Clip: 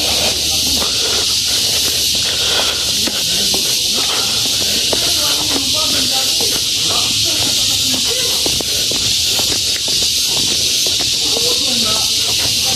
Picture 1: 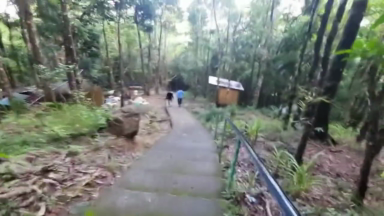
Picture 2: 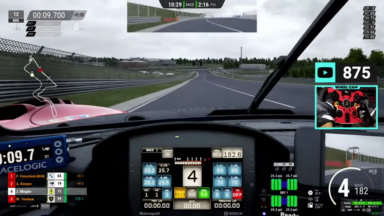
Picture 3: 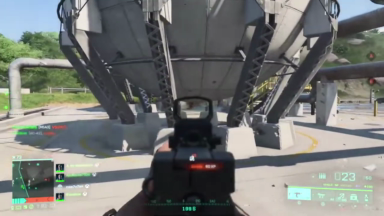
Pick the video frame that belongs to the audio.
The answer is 1